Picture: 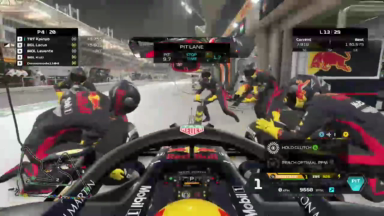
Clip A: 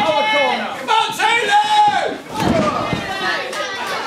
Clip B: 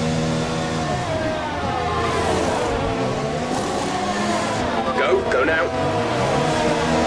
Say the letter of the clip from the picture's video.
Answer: B